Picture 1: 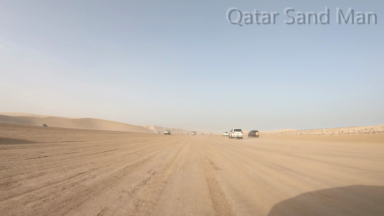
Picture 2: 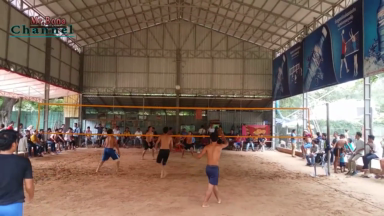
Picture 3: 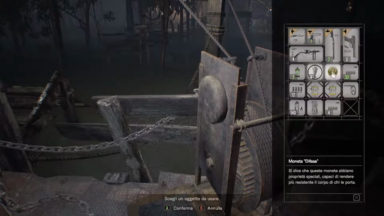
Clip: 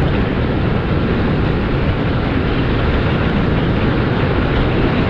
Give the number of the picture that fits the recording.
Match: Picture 1